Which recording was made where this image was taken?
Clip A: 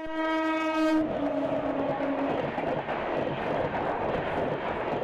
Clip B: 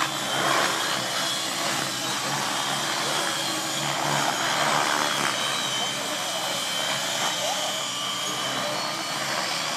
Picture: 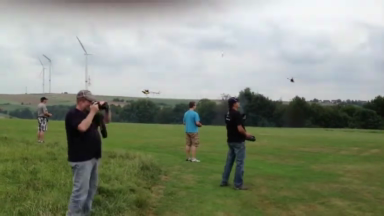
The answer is B